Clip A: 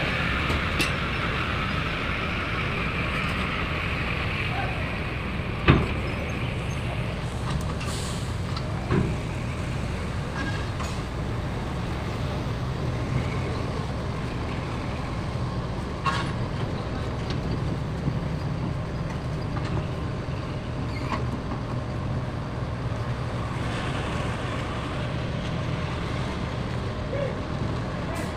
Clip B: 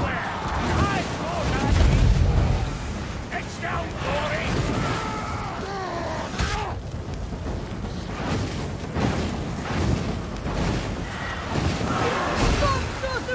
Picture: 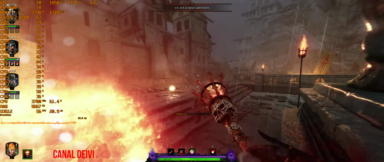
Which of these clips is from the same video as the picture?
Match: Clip B